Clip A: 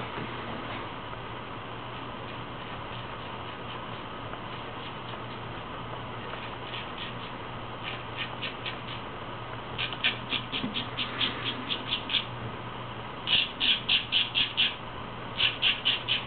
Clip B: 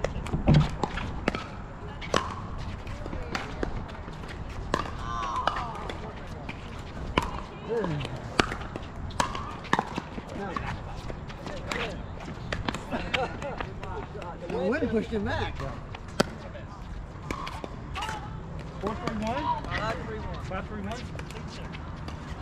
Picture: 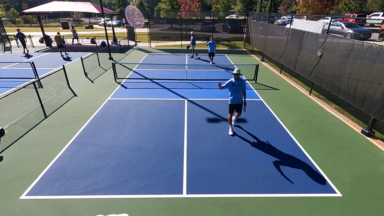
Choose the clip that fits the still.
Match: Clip B